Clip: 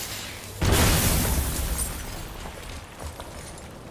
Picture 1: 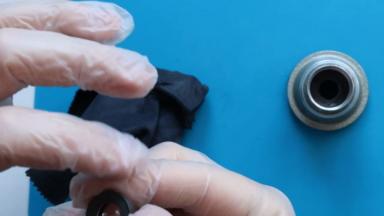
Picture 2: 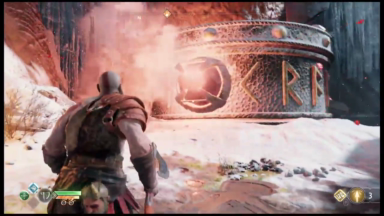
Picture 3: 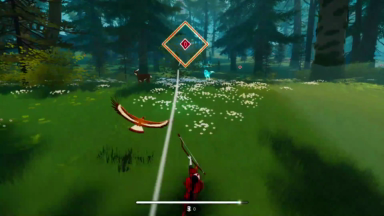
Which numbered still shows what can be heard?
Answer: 2